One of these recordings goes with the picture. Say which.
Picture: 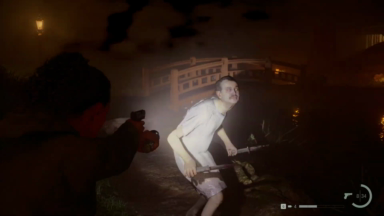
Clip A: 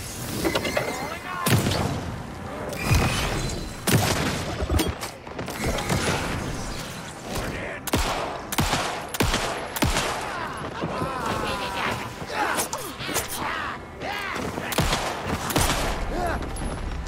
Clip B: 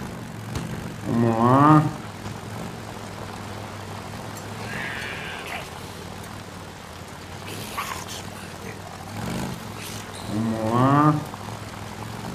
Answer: A